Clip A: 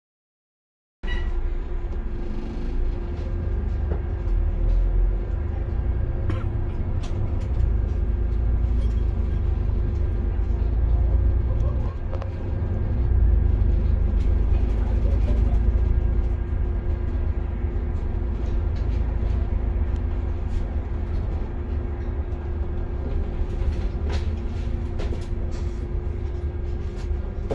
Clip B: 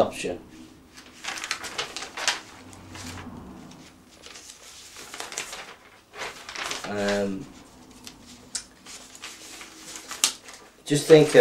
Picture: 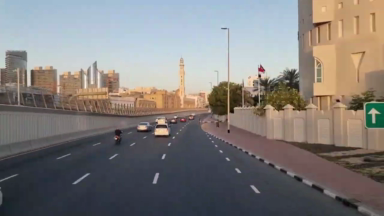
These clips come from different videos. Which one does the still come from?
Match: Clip A